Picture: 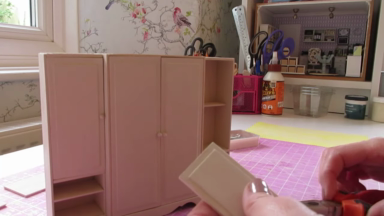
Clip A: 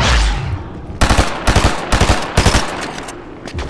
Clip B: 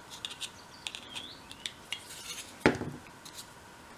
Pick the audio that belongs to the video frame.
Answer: B